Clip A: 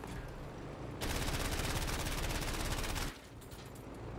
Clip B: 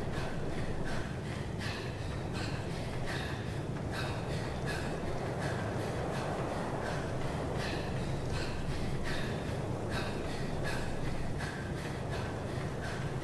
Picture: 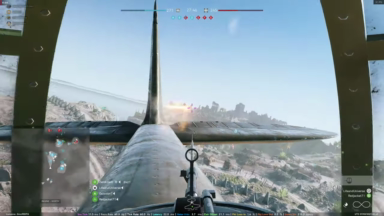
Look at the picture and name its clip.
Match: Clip A